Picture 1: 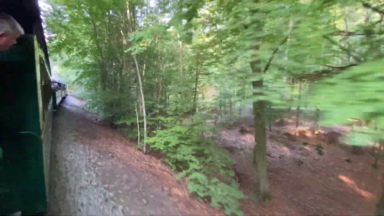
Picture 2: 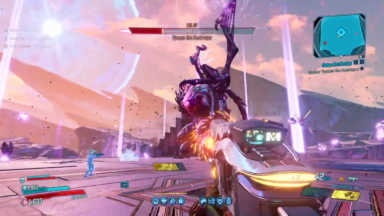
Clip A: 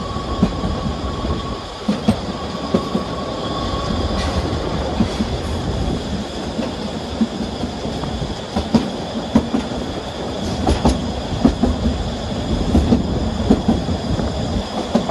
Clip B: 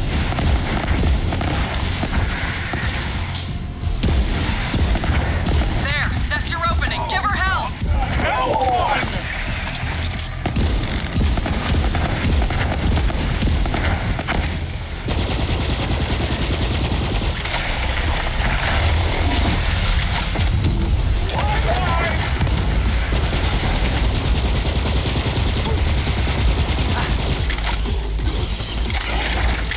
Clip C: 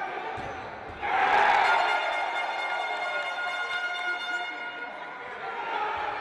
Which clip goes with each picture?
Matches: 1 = A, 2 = B